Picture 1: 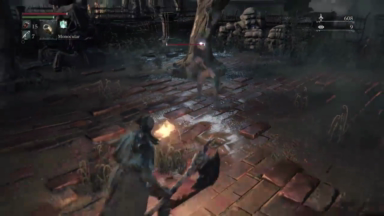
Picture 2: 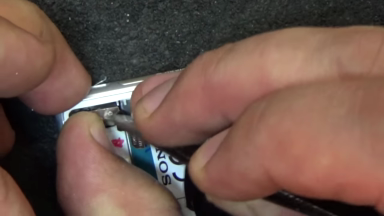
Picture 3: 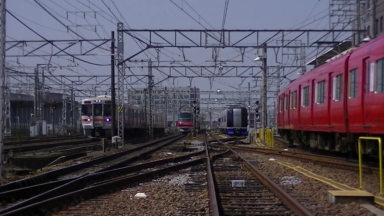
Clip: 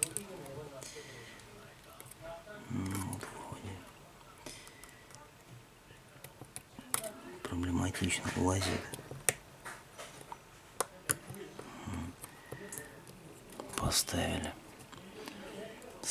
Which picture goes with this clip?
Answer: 2